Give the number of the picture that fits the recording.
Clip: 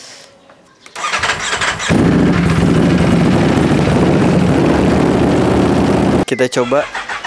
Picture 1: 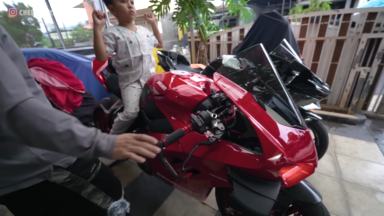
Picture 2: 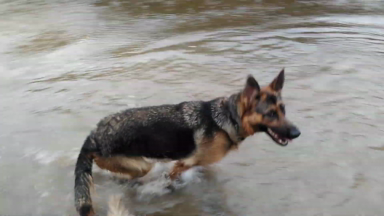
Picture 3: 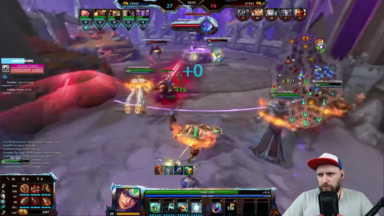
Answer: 1